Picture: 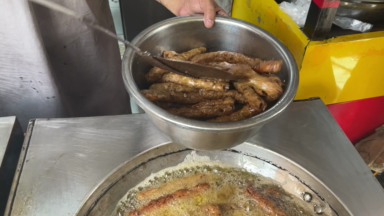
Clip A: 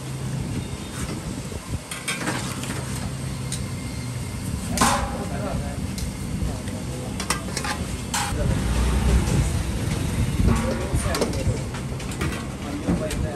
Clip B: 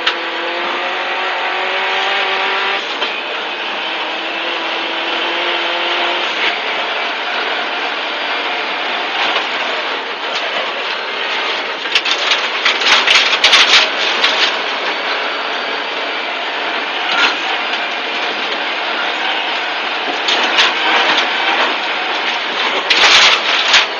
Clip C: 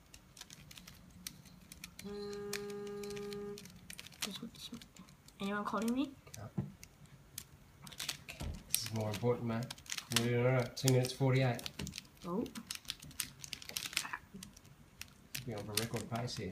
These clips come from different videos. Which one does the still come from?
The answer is A